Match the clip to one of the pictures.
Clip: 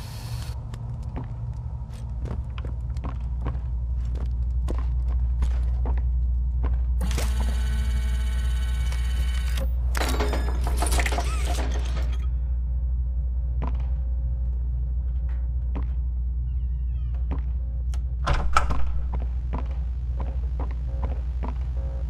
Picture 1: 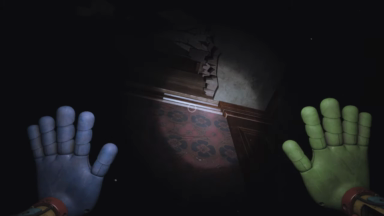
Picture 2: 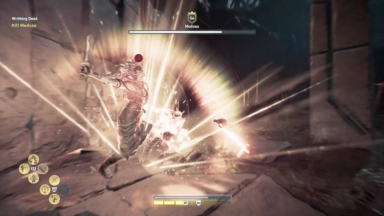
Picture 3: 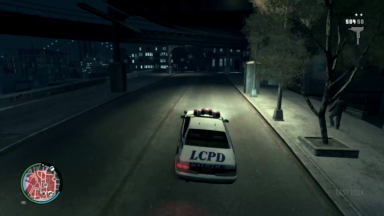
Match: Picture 1